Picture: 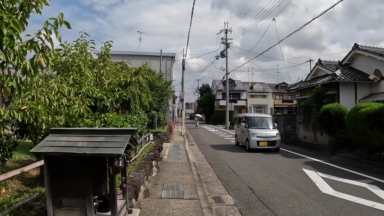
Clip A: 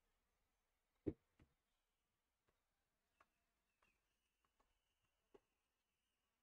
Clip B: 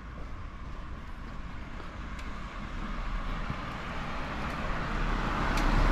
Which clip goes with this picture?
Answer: B